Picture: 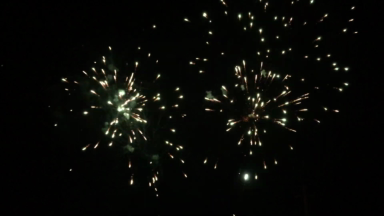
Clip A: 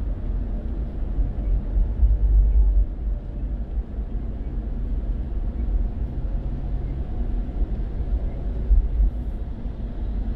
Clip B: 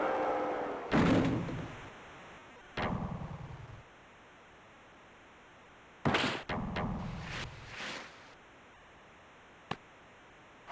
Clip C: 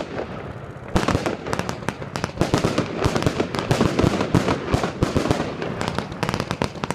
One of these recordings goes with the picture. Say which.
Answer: C